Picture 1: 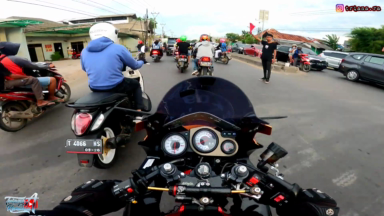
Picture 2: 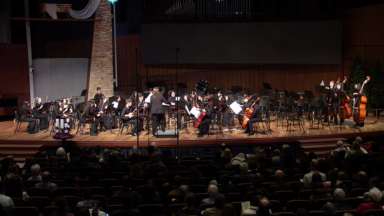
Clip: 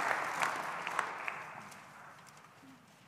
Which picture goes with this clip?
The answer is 2